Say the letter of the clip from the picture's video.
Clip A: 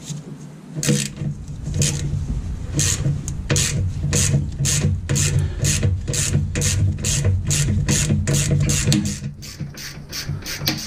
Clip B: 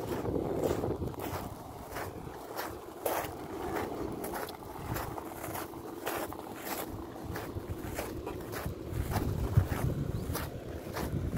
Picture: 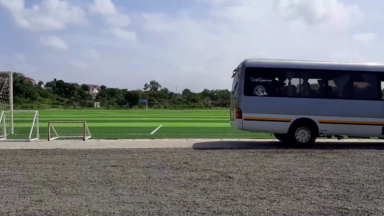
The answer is B